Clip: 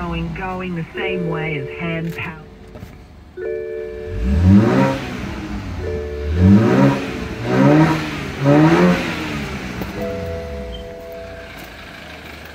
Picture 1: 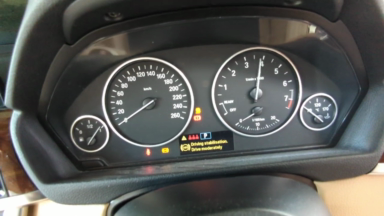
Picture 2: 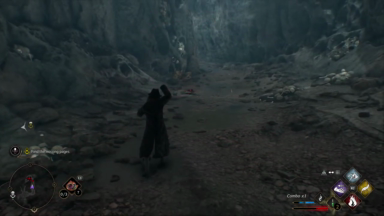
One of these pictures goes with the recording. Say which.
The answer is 1